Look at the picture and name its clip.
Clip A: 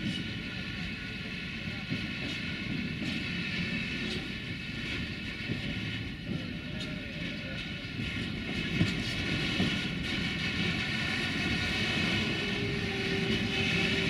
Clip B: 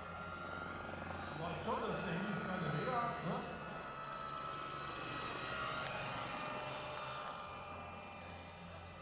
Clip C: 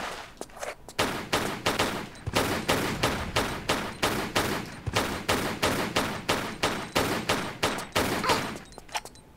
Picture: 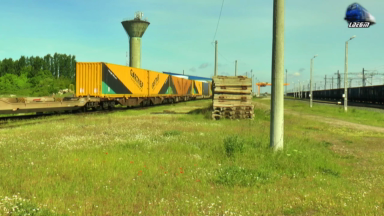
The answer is A